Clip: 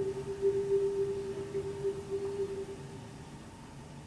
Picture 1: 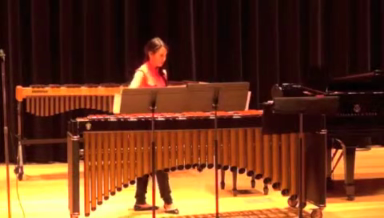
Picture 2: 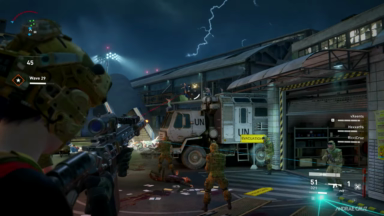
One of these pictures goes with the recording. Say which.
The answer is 1